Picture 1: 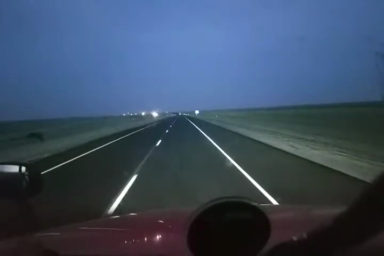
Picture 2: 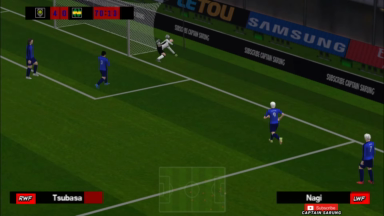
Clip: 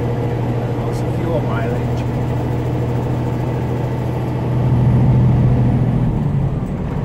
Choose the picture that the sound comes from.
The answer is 1